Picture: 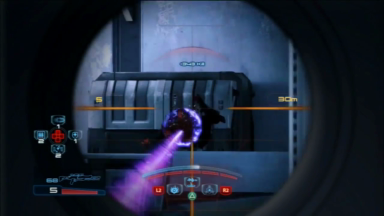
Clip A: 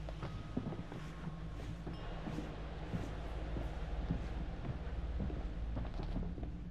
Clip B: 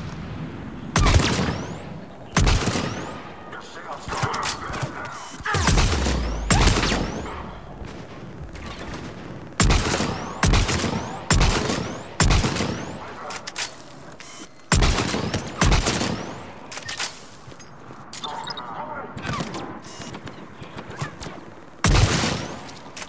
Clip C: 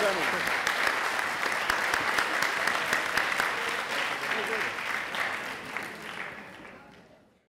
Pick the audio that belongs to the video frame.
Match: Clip B